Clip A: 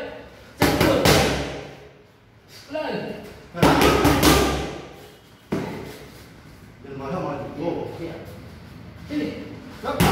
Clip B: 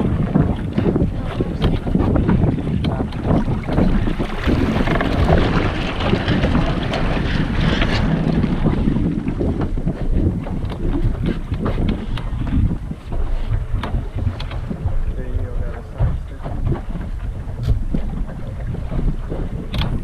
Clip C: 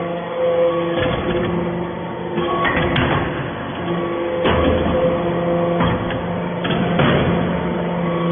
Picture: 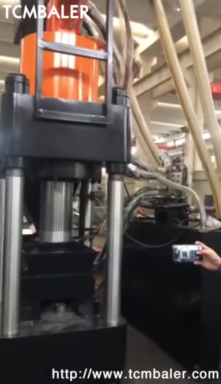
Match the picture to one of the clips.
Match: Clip C